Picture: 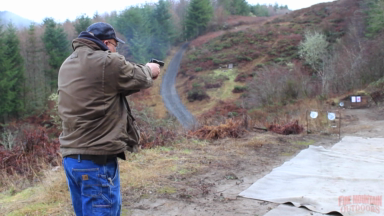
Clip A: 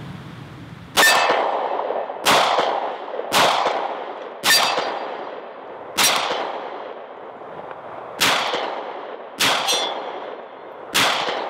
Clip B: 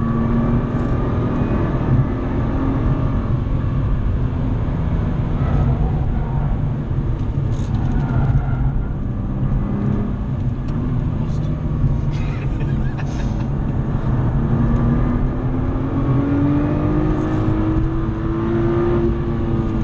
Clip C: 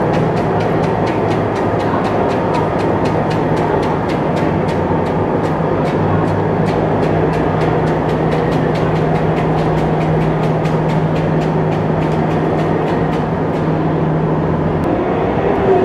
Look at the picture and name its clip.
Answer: A